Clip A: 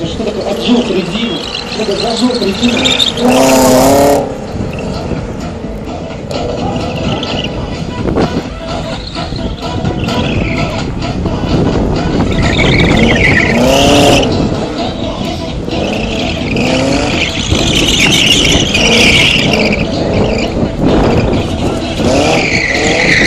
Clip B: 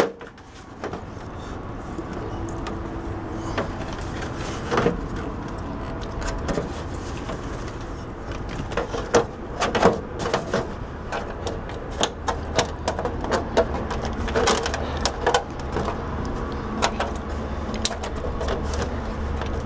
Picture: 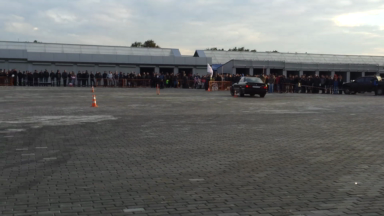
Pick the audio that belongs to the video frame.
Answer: A